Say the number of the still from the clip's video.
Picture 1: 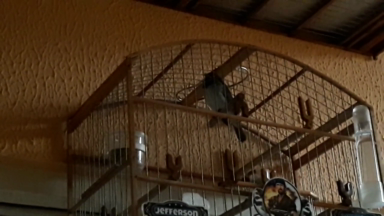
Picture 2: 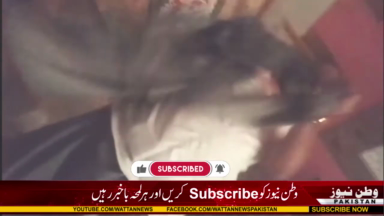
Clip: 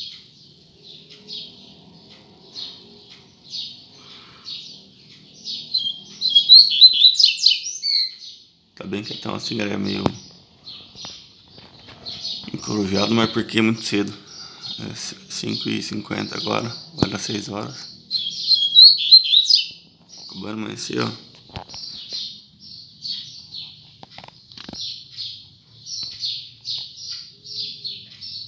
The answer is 1